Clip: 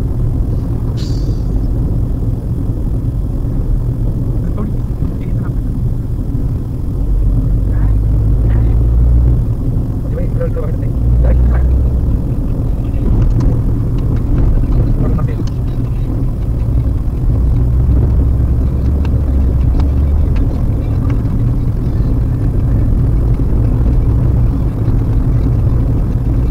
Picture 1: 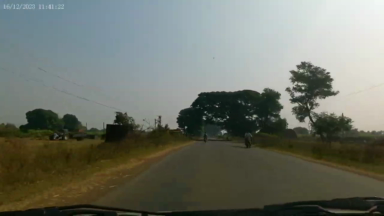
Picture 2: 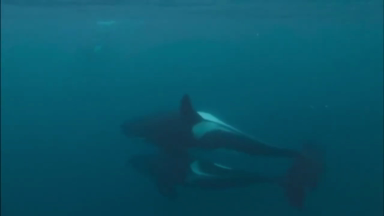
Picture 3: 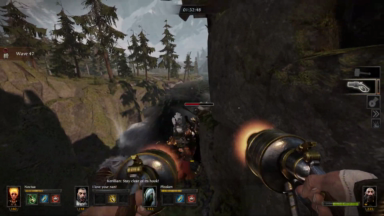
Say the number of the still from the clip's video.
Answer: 1